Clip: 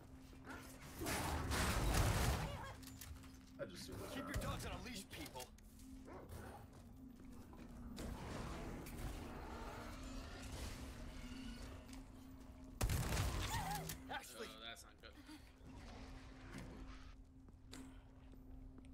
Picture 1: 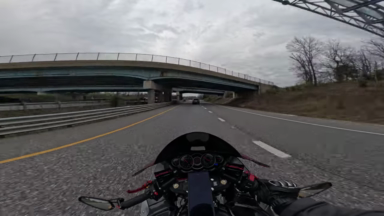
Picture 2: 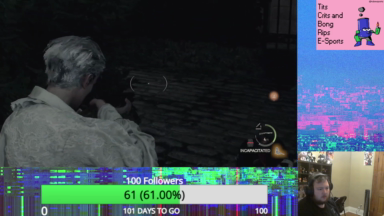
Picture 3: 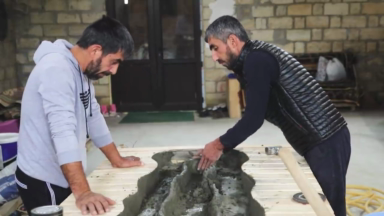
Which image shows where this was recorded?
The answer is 2